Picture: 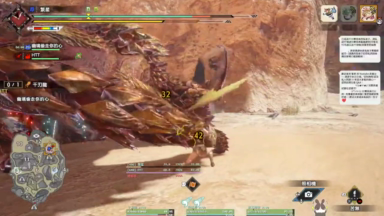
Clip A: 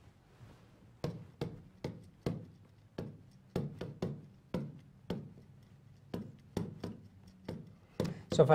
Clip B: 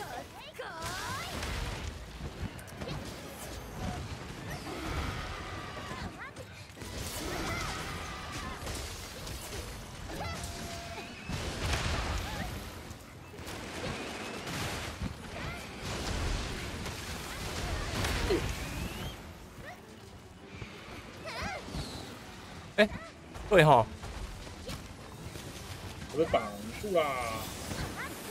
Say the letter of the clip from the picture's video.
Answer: B